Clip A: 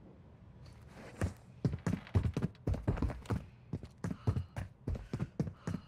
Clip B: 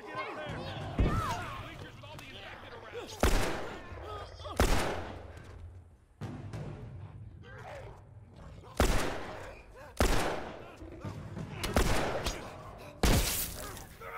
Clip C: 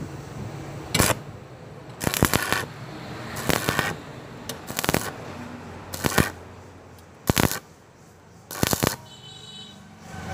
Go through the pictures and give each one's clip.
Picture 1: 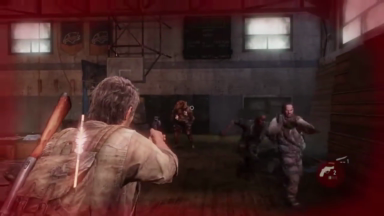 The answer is B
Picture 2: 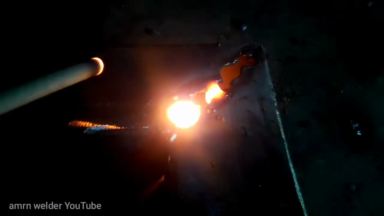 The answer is C